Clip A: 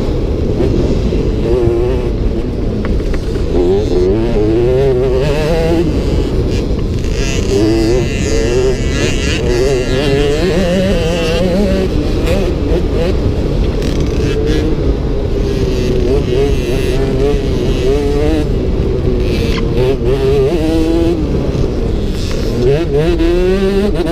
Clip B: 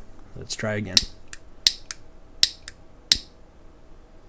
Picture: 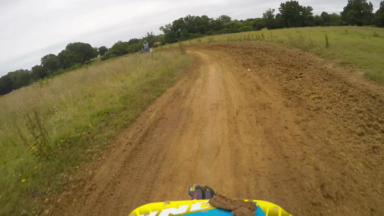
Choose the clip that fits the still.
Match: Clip A